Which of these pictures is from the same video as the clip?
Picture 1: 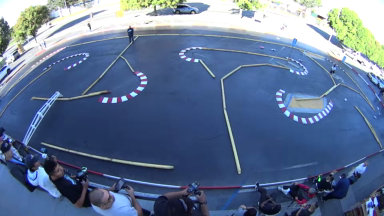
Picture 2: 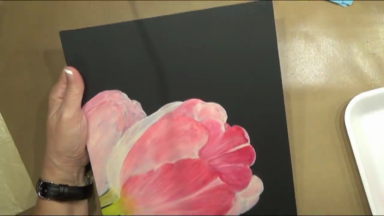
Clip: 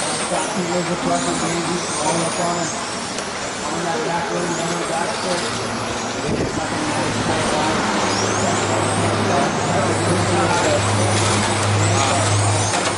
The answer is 1